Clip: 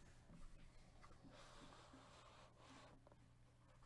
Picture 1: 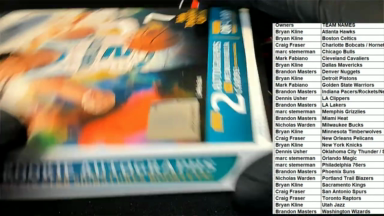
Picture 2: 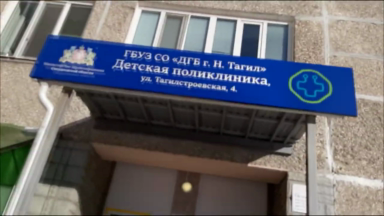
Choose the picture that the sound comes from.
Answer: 1